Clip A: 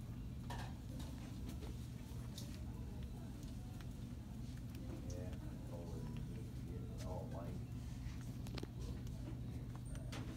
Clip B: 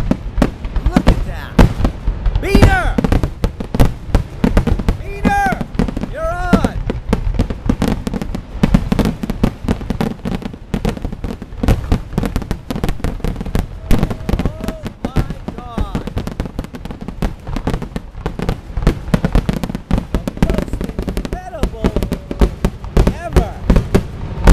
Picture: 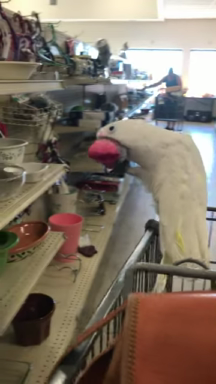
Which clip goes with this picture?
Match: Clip A